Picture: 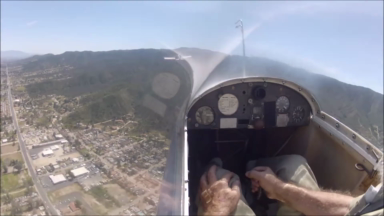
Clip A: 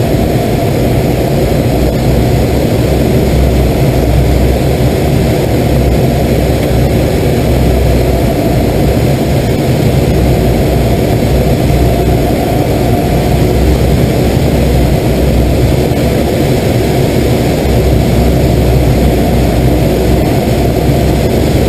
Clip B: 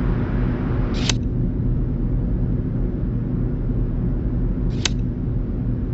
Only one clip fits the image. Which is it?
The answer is A